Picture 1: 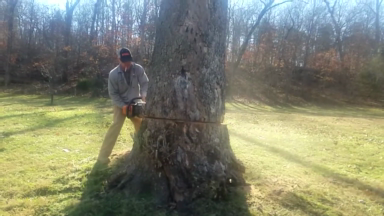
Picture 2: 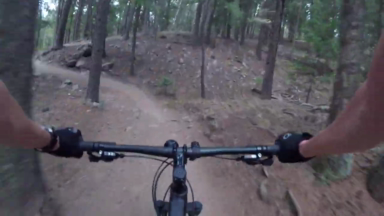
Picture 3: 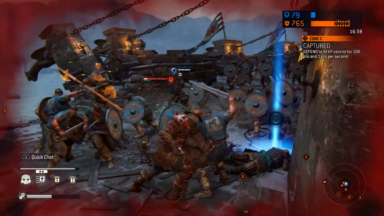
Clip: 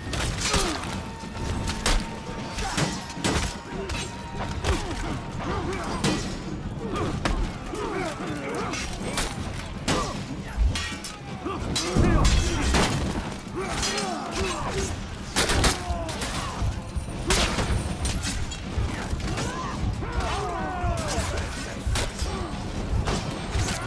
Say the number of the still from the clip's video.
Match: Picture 3